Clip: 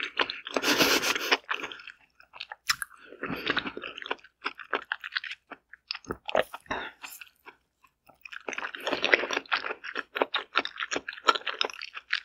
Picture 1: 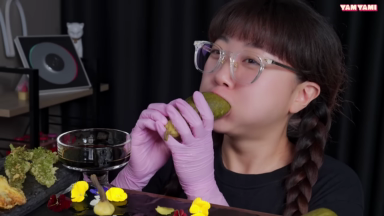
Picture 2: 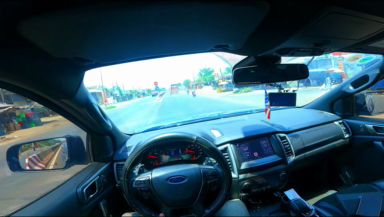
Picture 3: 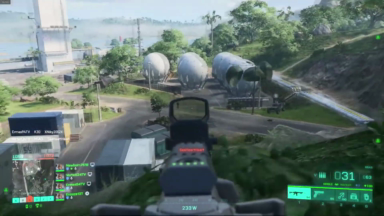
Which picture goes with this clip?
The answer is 1